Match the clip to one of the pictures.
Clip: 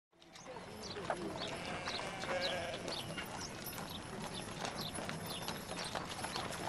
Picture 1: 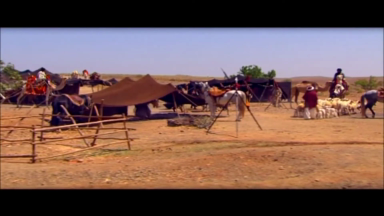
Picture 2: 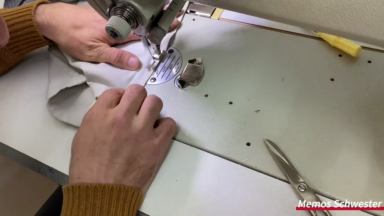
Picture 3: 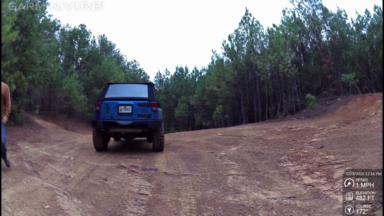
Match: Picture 1